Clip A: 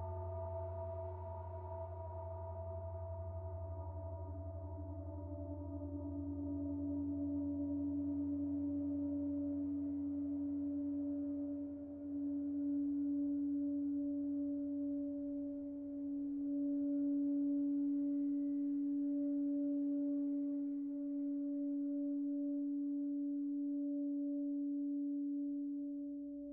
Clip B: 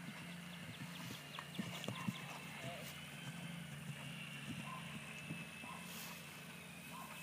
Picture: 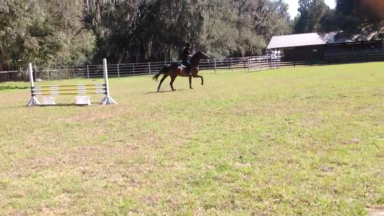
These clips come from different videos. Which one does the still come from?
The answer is B